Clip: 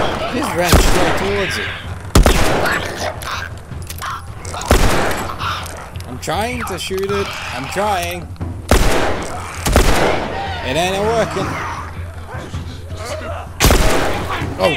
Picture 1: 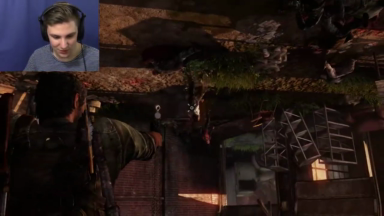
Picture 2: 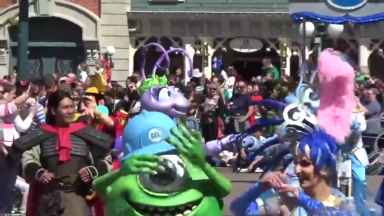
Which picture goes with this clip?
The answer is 1